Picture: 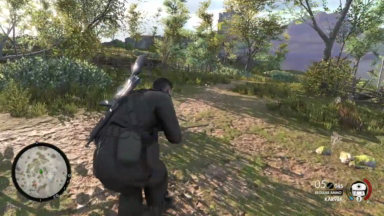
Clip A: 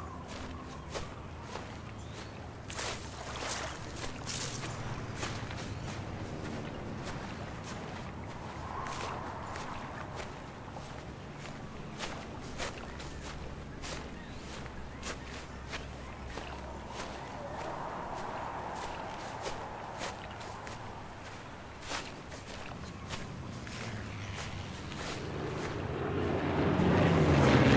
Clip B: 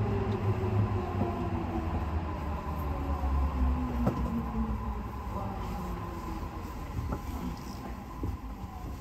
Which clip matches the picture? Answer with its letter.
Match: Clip A